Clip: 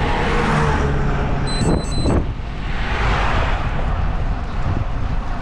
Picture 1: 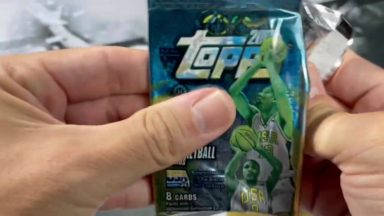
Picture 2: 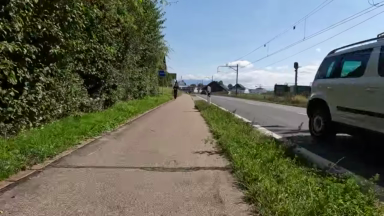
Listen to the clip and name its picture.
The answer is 2